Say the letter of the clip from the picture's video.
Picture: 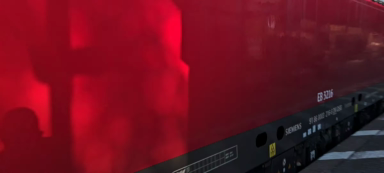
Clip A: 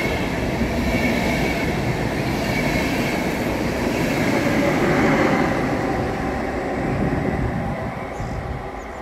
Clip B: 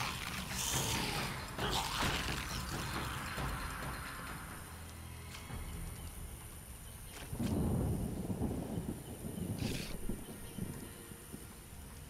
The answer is A